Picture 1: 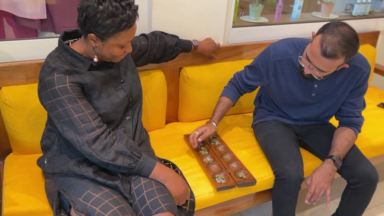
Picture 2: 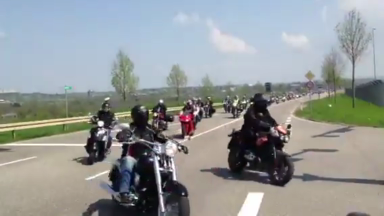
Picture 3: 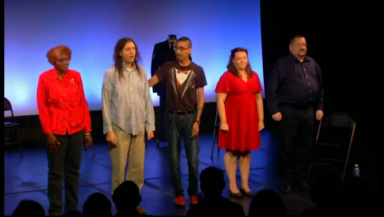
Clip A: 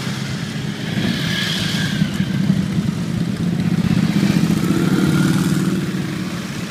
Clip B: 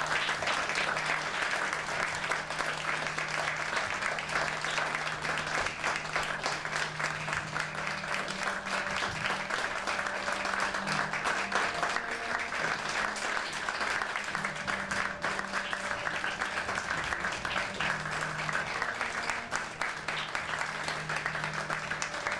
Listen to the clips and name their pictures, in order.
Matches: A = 2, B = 3